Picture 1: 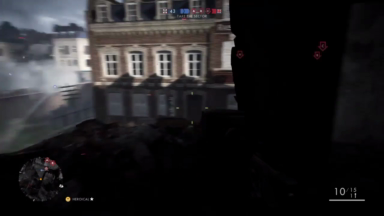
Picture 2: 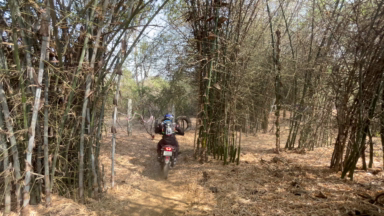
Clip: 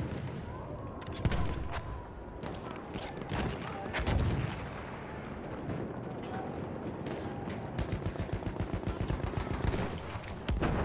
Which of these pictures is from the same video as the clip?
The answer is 1